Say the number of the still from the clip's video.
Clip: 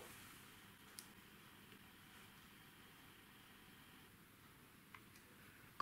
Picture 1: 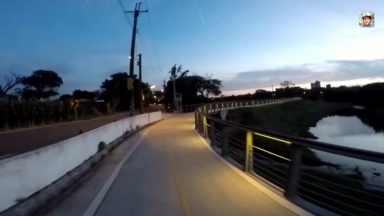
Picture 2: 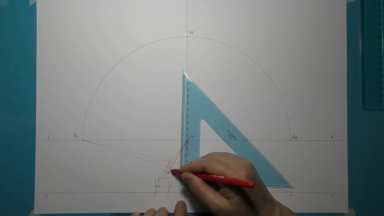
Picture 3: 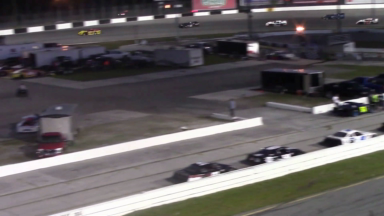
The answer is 2